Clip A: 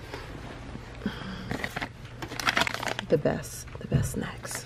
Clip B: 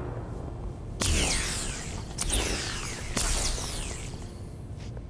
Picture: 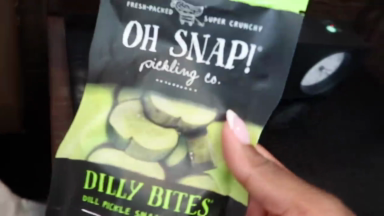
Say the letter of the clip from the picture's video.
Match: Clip A